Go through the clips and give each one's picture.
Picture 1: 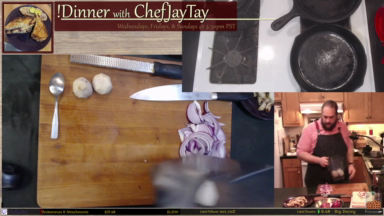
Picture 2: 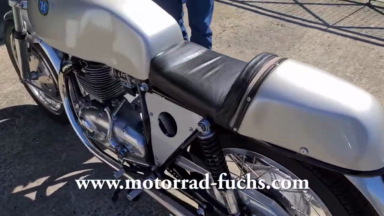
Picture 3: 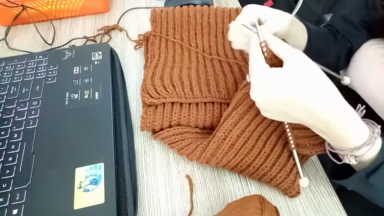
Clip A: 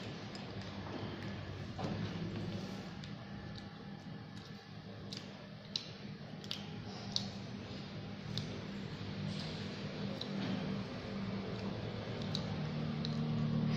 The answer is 3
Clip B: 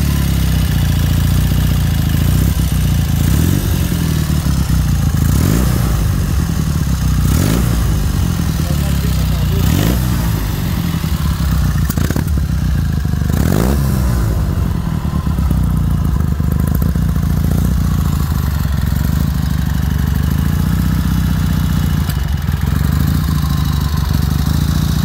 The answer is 2